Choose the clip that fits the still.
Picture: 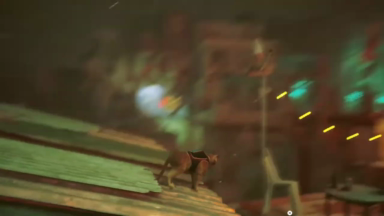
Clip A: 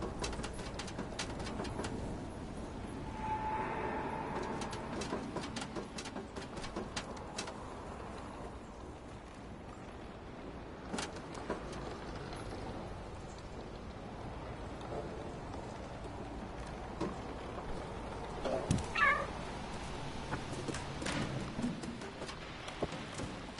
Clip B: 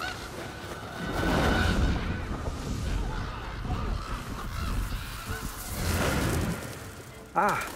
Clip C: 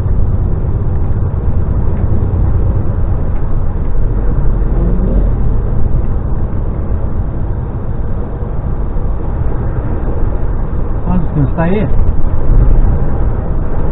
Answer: A